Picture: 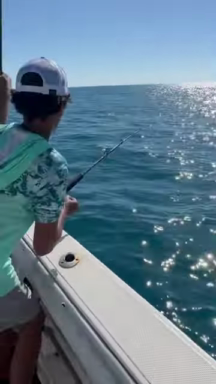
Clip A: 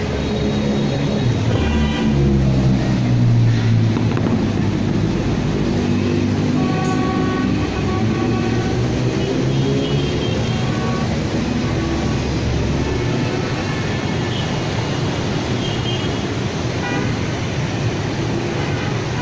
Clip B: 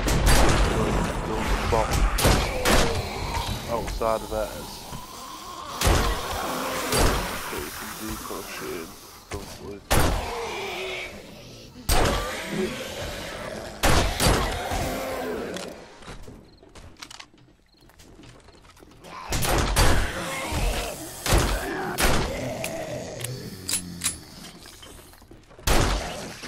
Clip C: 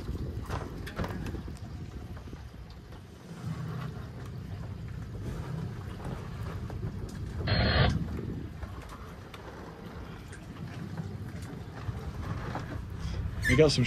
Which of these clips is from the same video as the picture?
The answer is C